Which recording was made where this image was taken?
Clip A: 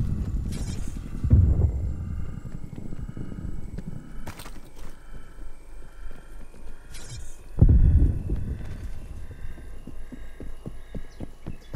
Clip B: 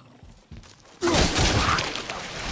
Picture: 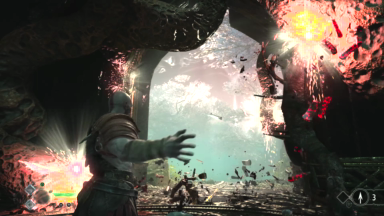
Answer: B